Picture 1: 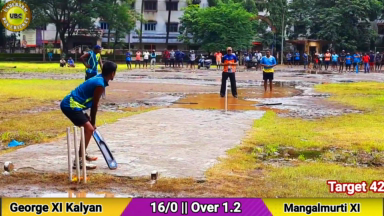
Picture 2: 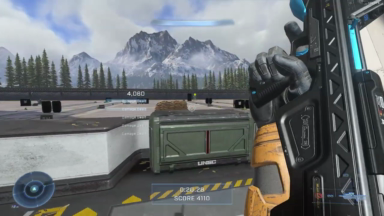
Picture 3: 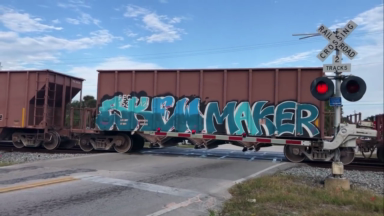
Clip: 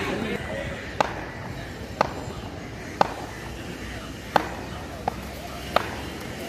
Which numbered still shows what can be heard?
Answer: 1